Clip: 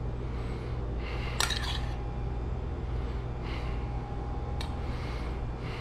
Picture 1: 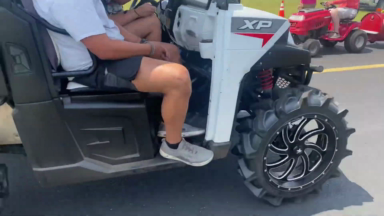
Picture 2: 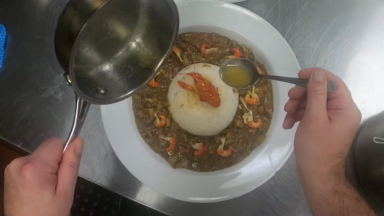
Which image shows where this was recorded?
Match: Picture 2